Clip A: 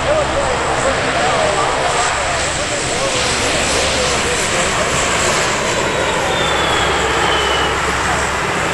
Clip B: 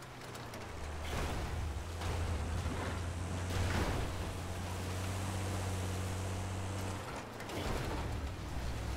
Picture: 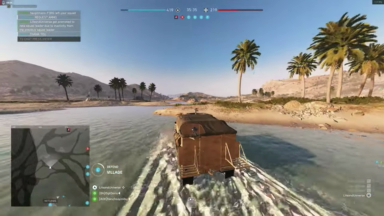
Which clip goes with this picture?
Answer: B